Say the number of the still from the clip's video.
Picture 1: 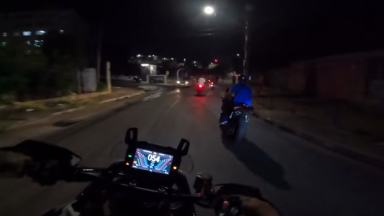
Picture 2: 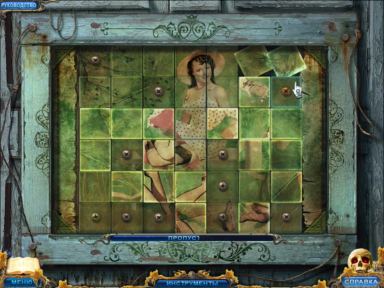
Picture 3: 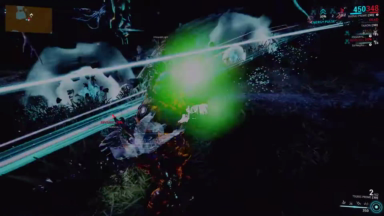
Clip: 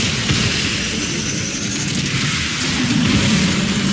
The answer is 3